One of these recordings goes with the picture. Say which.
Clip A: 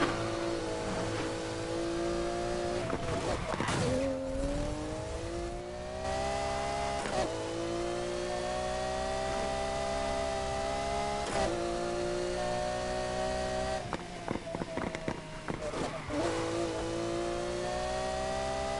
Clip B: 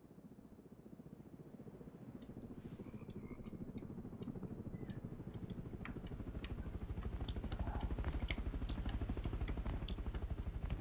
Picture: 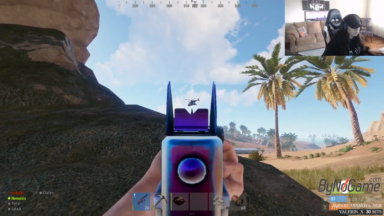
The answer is B